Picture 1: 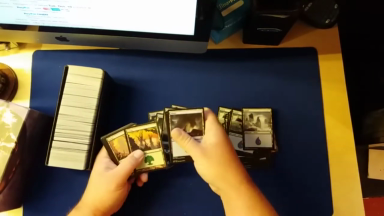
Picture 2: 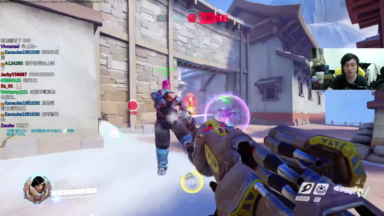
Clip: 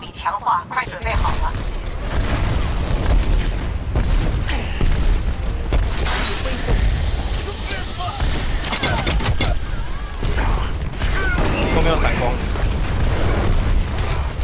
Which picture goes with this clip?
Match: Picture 2